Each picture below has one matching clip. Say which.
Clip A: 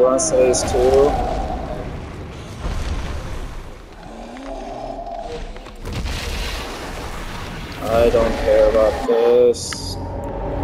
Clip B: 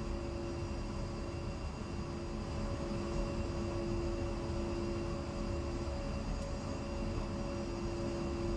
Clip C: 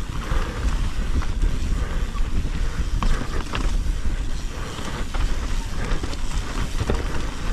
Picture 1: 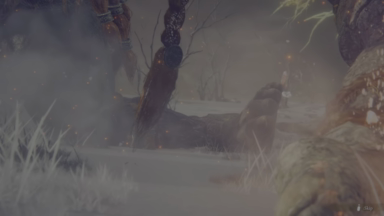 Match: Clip A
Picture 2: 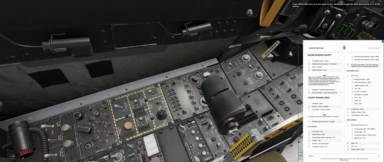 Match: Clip B